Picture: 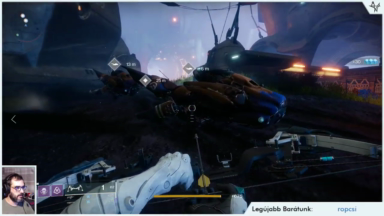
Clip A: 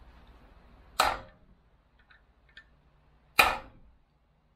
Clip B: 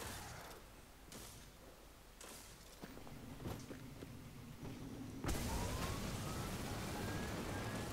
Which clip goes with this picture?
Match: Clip B